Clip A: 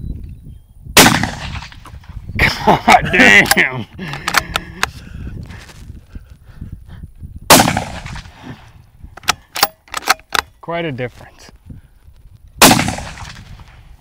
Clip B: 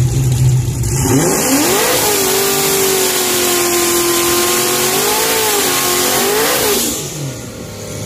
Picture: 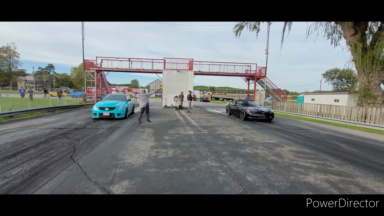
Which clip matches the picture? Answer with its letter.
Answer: B